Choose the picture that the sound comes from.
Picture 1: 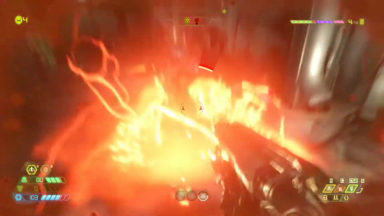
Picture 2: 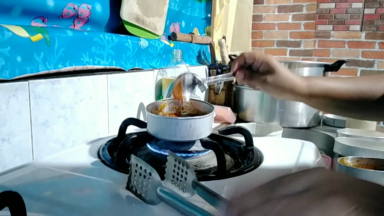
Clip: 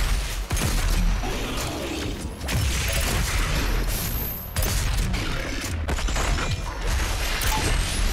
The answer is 1